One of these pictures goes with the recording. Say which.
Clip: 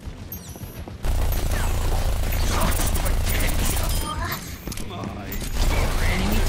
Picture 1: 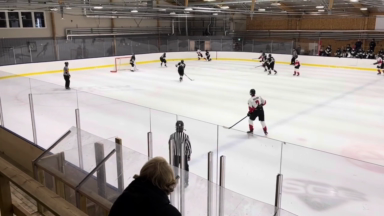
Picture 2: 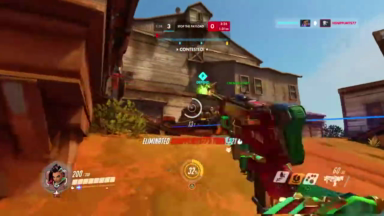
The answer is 2